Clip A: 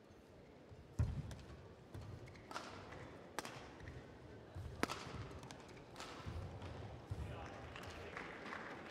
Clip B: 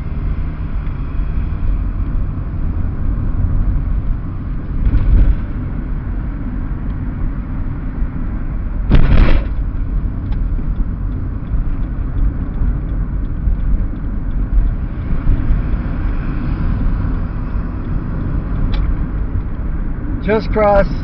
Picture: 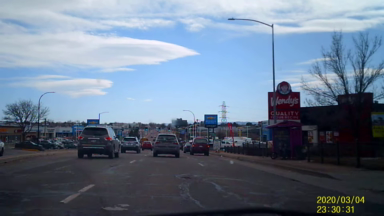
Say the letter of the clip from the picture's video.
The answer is B